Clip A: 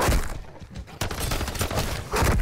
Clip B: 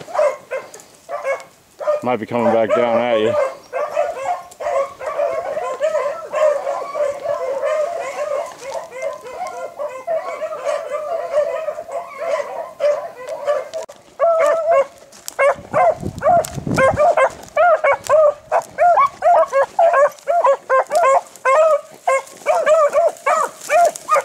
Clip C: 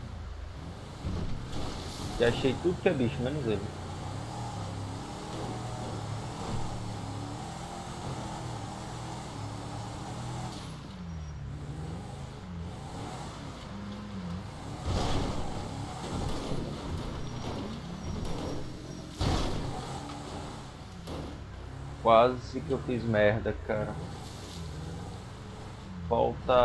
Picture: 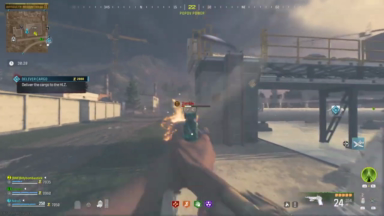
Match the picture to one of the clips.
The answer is A